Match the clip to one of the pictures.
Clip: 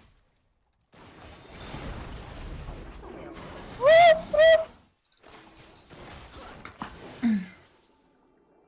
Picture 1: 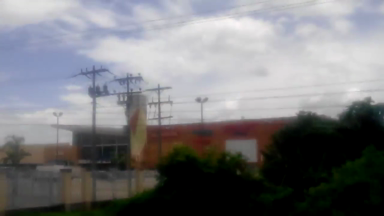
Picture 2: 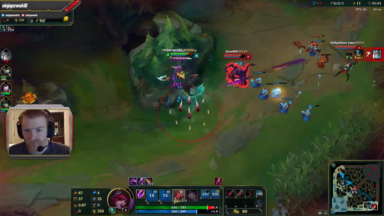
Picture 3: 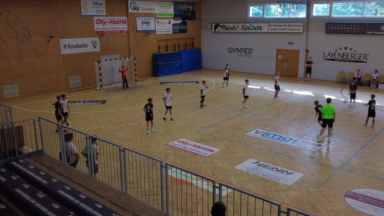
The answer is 2